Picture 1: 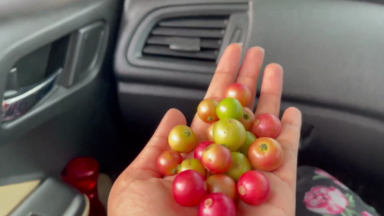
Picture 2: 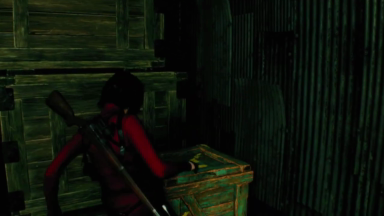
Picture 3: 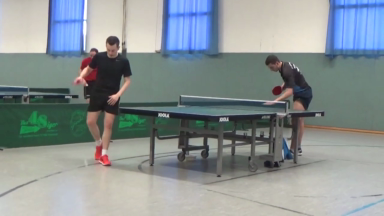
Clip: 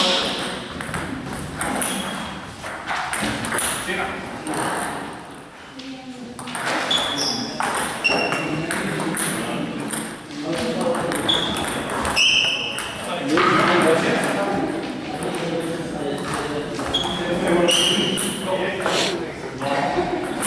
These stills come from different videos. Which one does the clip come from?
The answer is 3